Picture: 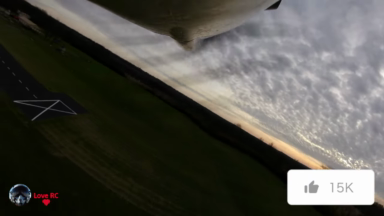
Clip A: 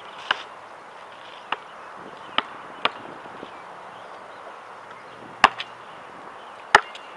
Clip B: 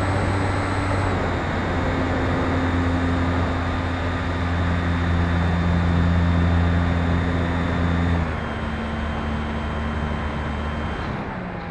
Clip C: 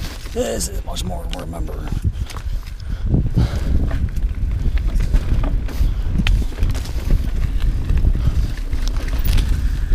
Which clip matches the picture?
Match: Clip B